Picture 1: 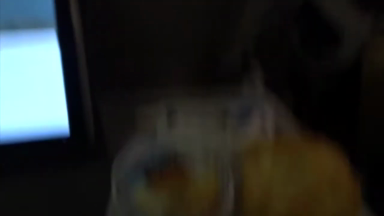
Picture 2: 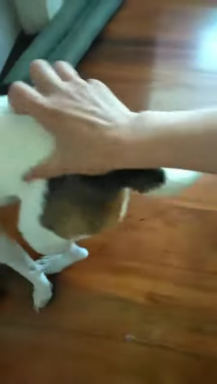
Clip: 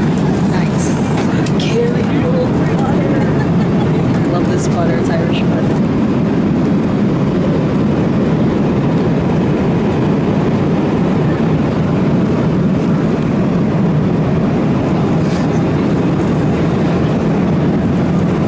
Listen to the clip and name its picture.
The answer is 1